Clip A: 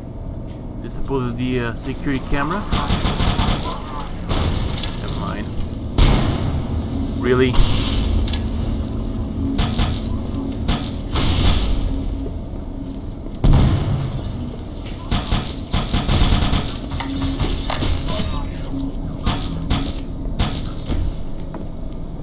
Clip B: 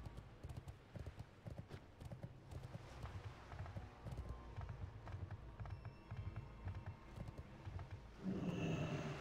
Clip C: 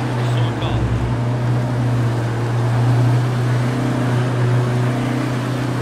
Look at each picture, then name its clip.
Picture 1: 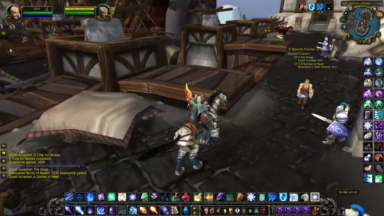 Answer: B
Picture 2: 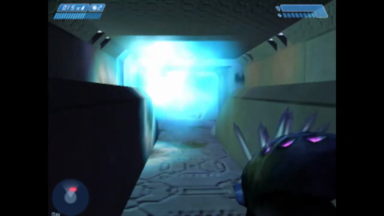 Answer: A